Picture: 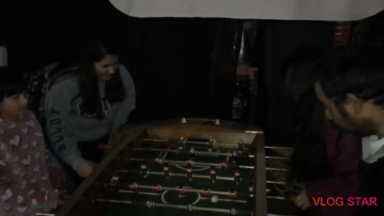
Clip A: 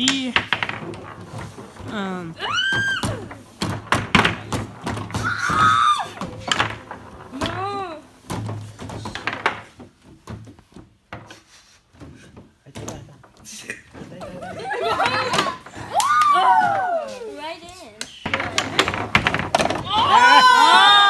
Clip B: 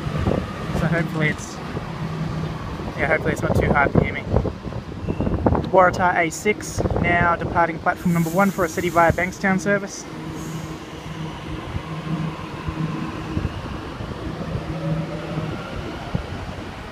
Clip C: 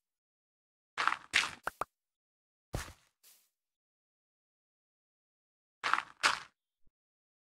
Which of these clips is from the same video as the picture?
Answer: A